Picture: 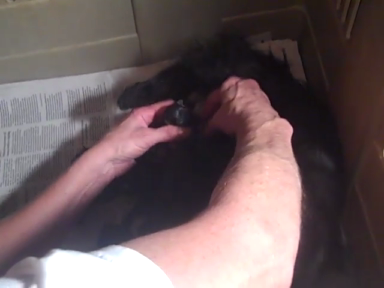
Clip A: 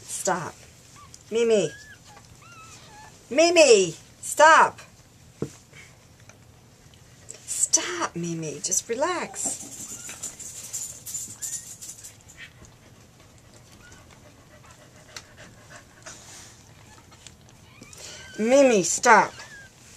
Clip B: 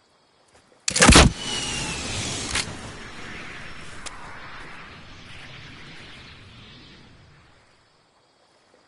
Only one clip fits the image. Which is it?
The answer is A